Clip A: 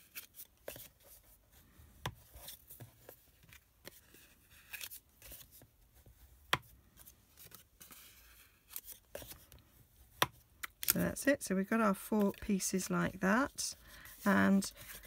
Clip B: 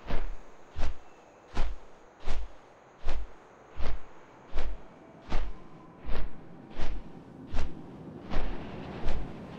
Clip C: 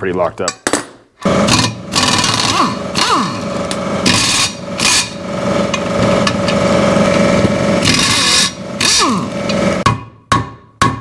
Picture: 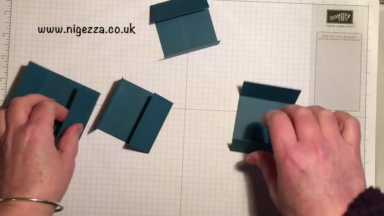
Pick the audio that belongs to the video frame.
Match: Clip A